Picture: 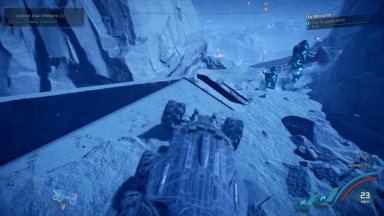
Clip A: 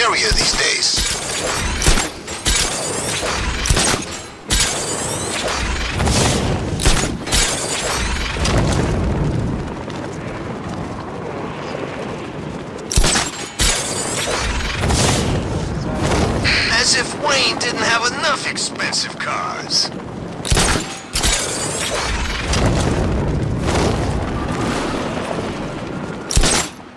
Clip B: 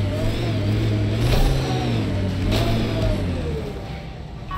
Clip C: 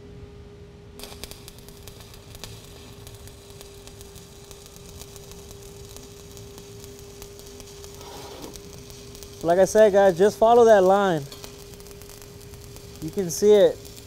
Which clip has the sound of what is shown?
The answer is B